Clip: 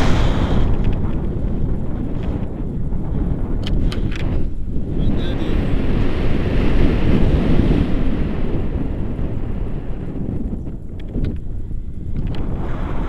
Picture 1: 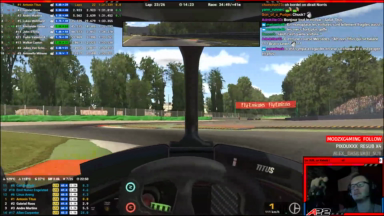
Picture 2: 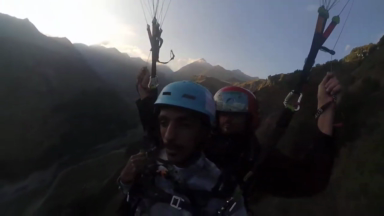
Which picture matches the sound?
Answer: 2